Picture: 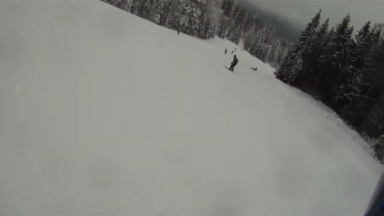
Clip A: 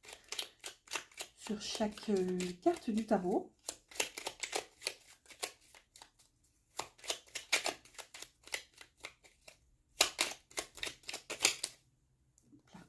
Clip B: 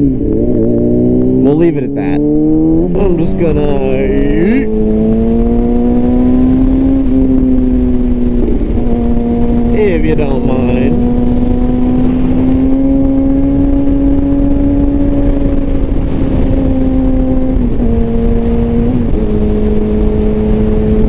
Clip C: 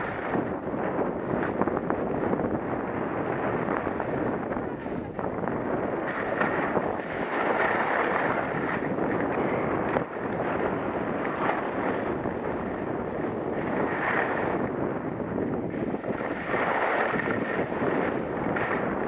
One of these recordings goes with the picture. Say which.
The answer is C